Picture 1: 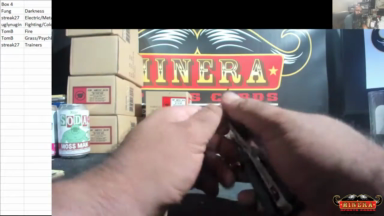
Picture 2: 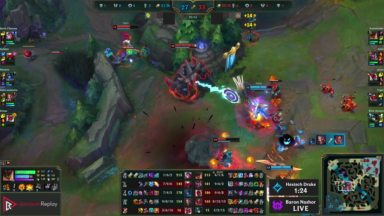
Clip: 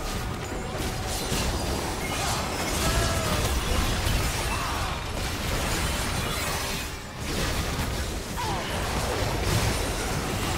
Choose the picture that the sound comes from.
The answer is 2